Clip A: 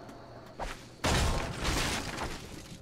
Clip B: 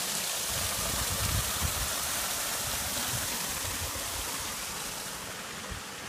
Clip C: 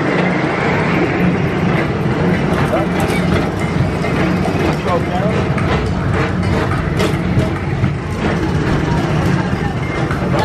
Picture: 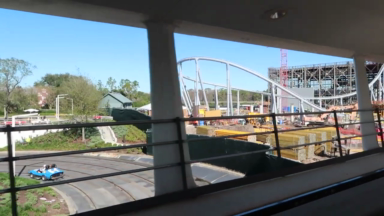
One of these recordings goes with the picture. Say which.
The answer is C